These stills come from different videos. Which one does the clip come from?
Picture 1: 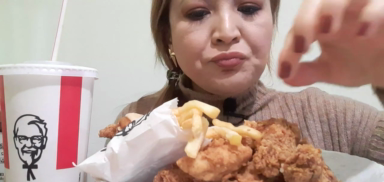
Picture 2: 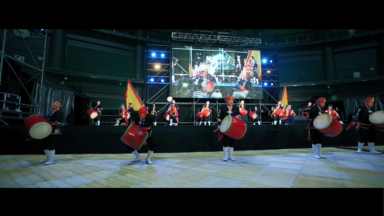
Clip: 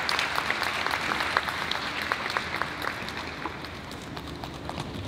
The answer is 2